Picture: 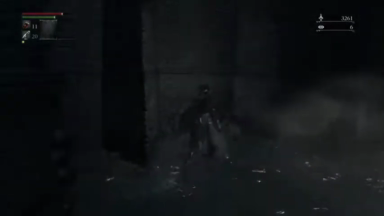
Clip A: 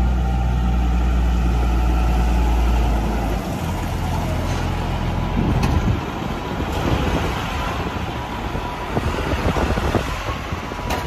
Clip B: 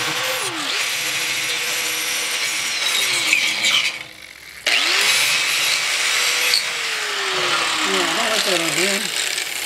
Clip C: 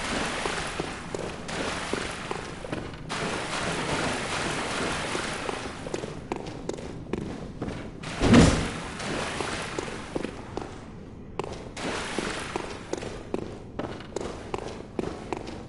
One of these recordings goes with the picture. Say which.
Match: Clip C